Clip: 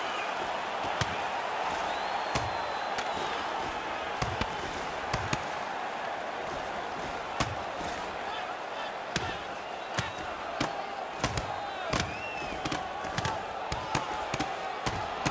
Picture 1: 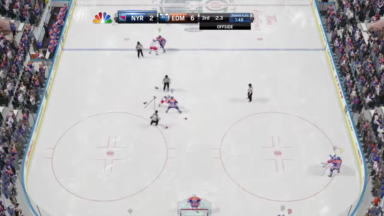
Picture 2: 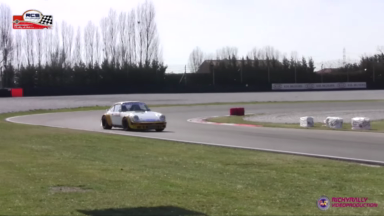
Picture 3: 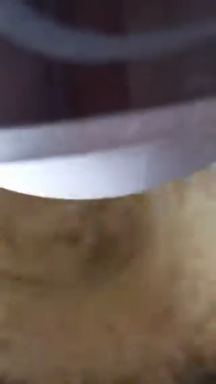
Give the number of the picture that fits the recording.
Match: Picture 1